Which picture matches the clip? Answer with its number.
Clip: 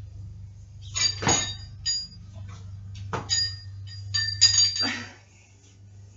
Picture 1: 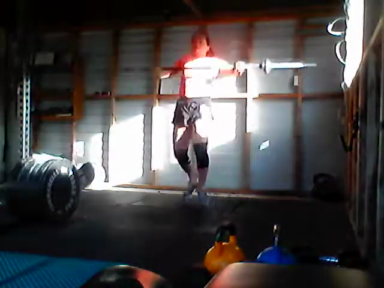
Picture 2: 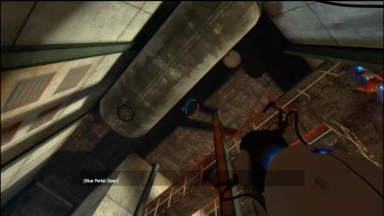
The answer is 1